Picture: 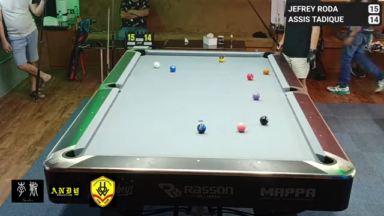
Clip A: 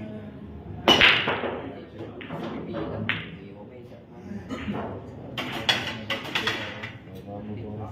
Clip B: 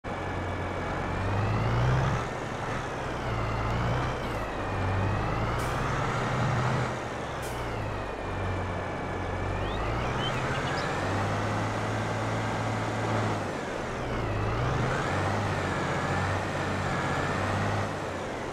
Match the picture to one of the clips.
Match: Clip A